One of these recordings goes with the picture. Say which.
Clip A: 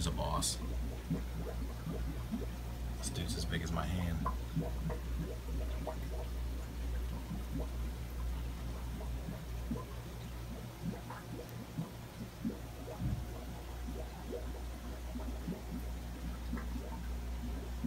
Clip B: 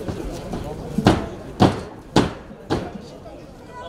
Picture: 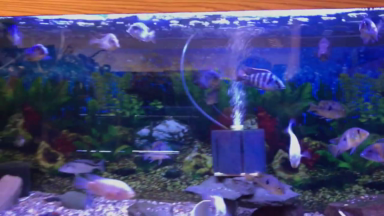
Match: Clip A